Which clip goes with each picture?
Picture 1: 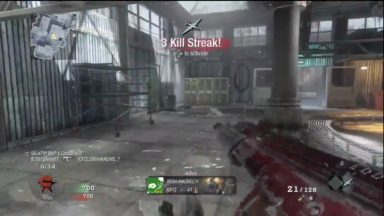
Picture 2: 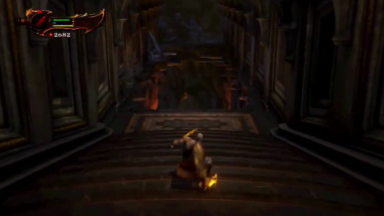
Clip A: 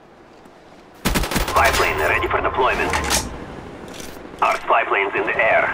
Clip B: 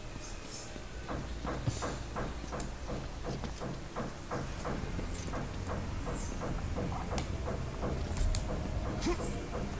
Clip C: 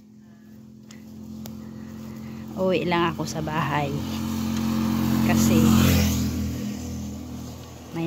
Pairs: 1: A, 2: B